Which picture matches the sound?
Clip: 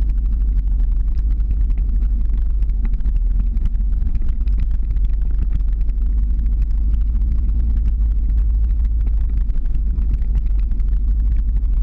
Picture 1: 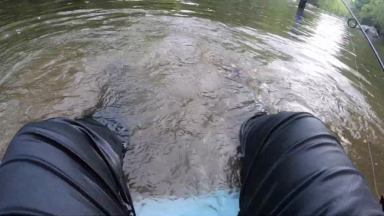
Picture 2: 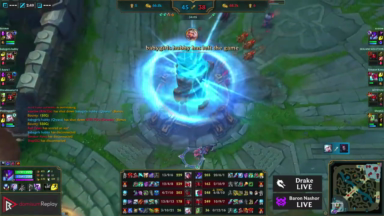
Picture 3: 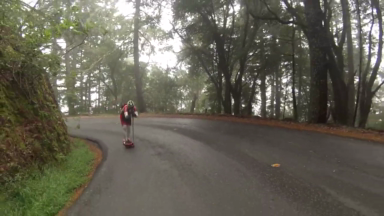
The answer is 3